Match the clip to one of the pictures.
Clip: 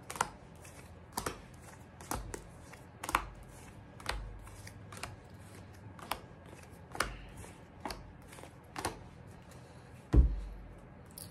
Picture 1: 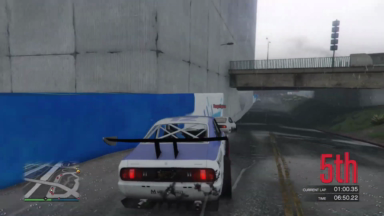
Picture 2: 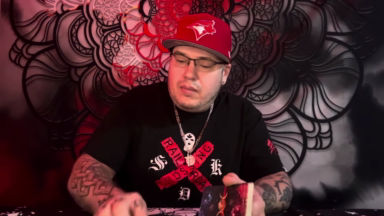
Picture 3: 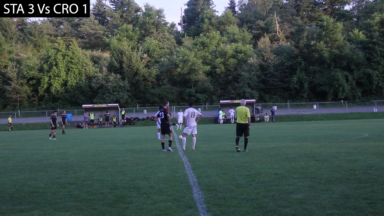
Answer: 2